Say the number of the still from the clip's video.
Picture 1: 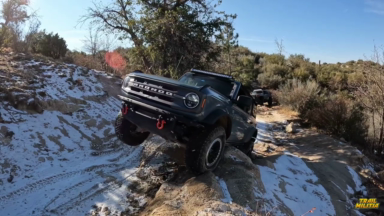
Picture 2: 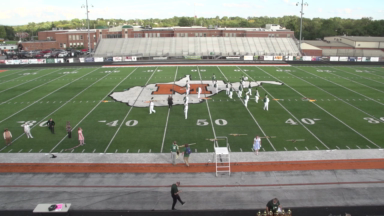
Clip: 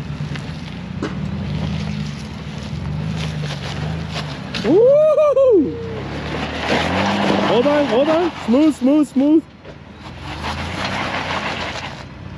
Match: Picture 1